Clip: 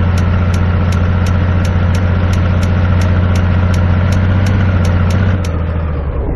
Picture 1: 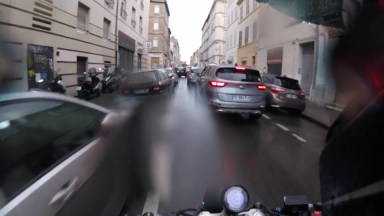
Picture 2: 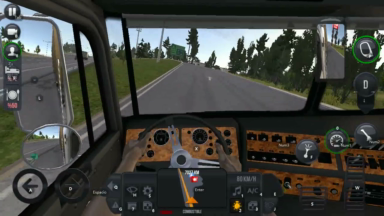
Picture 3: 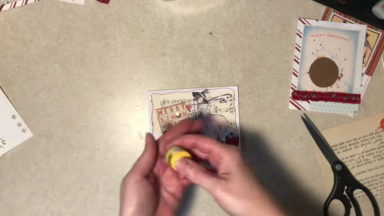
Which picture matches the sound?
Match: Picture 2